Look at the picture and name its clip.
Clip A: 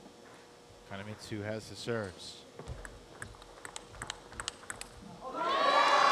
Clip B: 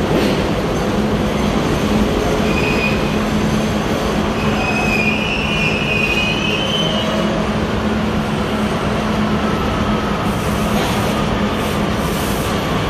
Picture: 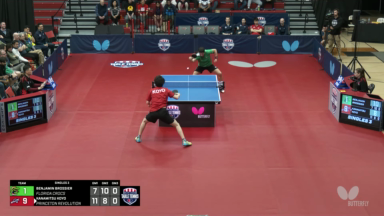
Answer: A